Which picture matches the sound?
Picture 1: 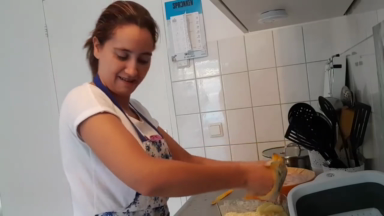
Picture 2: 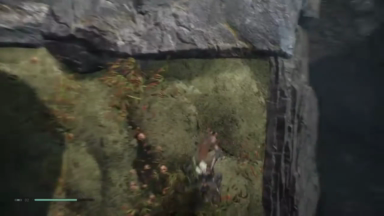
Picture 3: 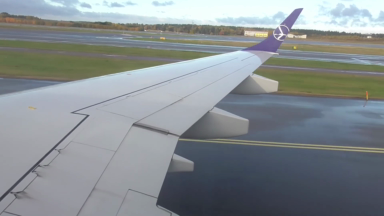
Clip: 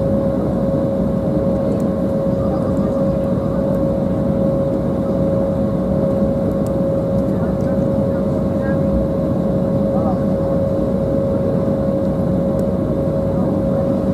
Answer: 3